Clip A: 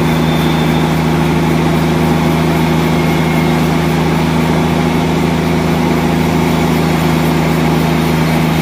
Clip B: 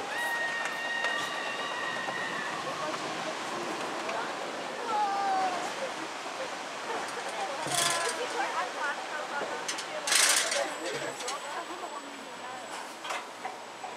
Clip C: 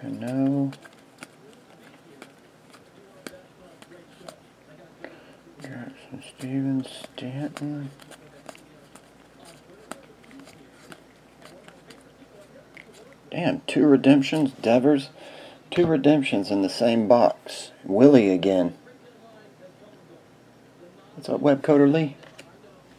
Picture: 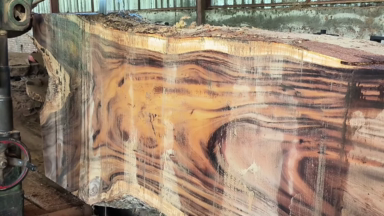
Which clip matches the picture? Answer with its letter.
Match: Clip A